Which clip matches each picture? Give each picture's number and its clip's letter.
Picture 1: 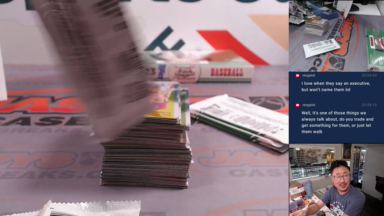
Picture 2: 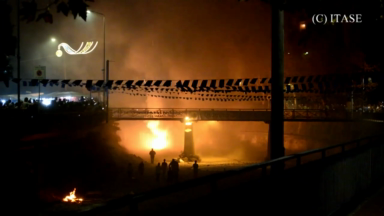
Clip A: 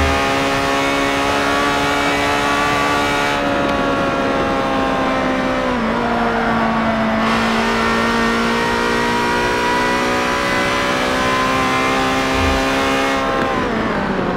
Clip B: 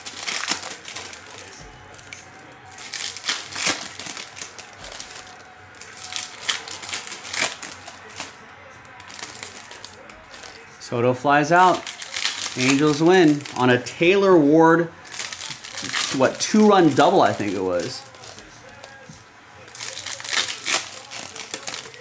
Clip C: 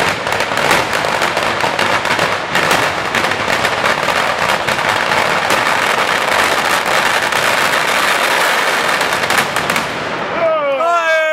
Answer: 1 B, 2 C